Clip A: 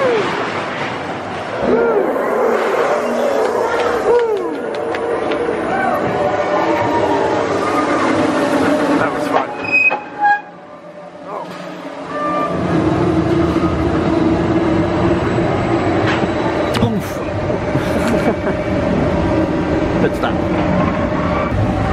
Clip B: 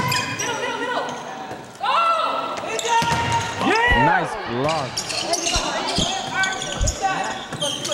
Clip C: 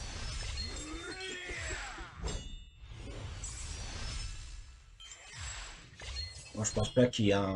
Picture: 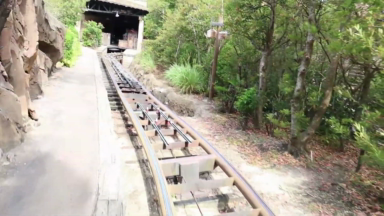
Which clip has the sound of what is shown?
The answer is A